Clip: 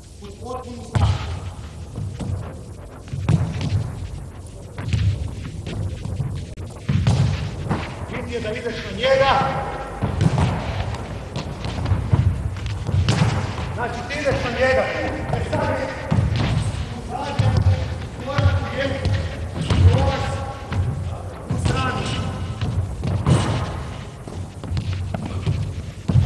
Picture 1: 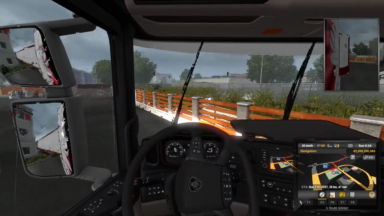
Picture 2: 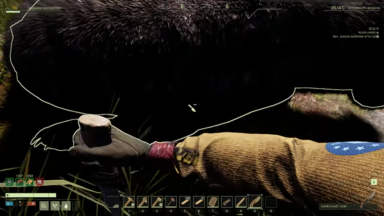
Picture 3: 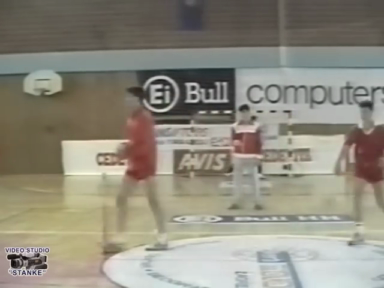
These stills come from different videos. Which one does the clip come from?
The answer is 3